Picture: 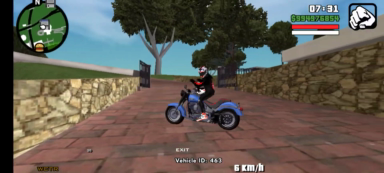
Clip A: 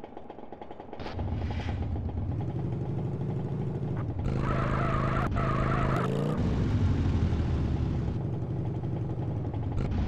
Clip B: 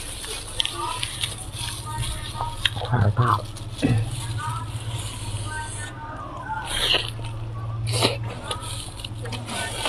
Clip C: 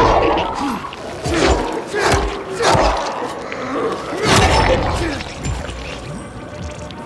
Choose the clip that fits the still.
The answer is A